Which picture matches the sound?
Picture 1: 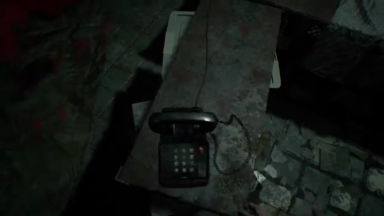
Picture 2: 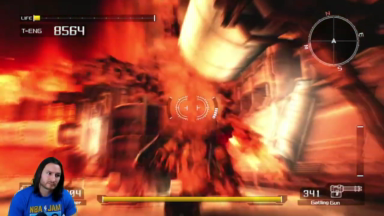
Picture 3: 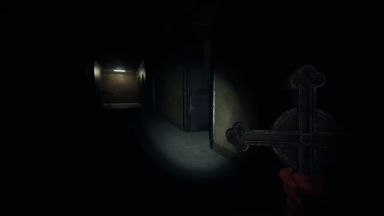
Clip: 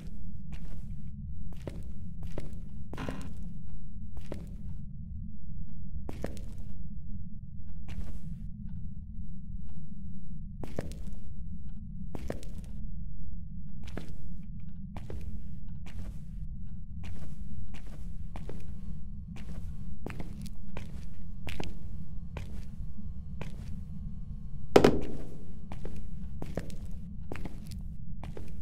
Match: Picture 3